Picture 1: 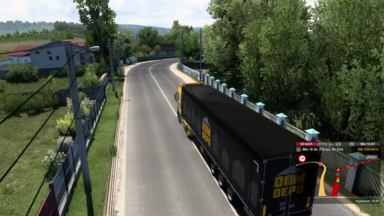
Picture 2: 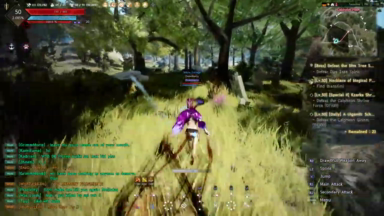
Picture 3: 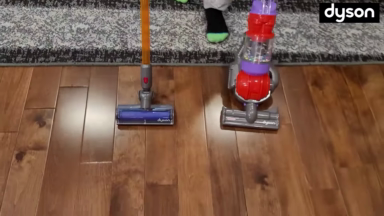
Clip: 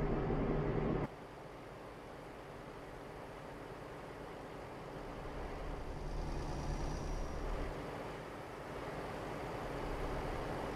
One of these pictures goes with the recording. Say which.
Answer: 1